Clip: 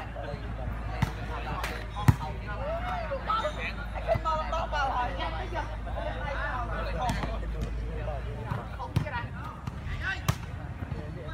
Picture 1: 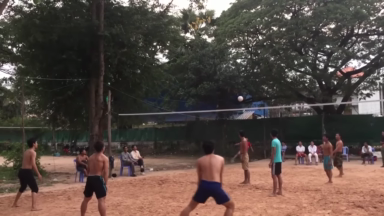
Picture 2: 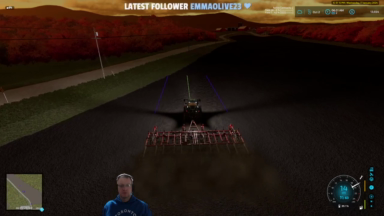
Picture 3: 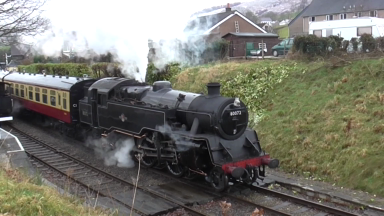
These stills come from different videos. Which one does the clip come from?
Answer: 1